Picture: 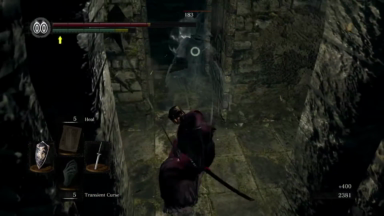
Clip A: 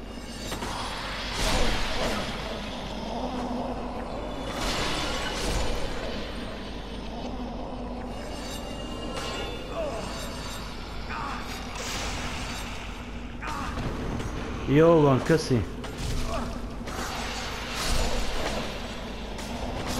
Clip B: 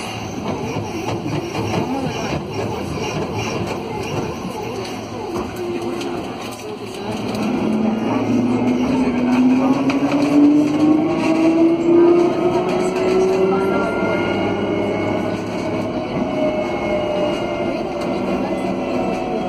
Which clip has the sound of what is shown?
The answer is A